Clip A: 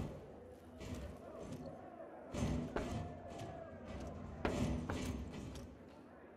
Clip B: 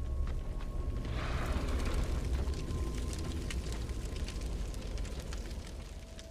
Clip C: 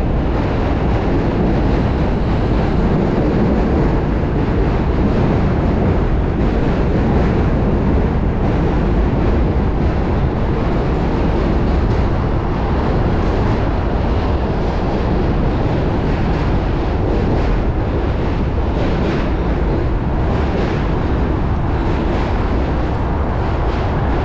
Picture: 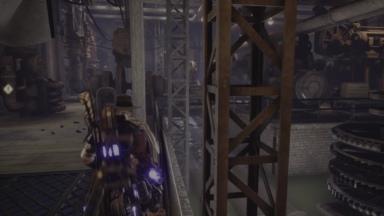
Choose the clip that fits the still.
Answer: A